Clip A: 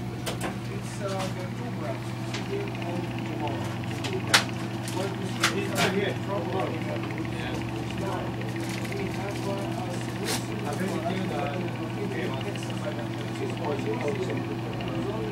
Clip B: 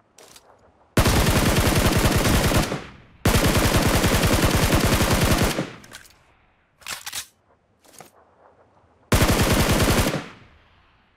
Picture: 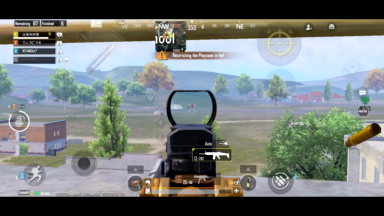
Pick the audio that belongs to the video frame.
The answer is B